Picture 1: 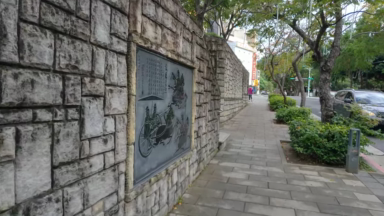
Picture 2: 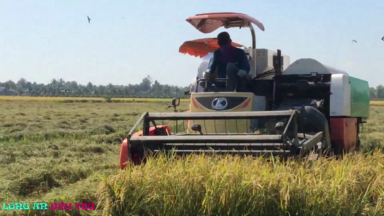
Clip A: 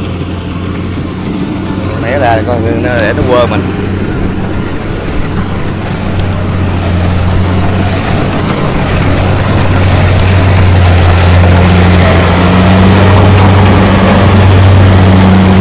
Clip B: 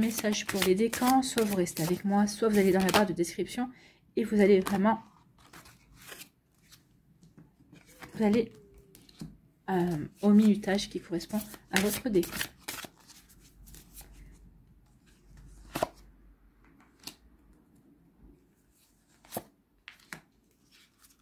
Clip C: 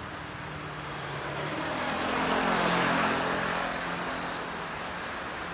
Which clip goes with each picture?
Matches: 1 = C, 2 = A